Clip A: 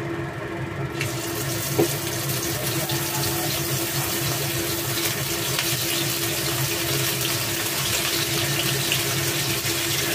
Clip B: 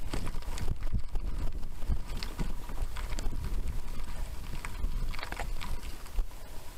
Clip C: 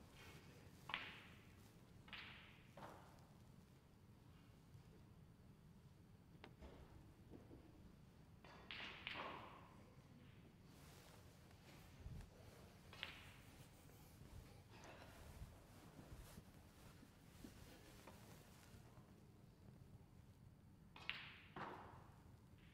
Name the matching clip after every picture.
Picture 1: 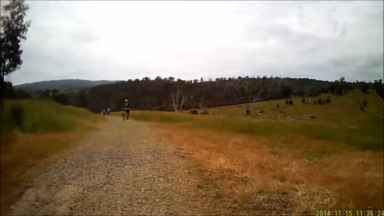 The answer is B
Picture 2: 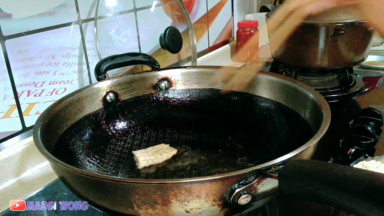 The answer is A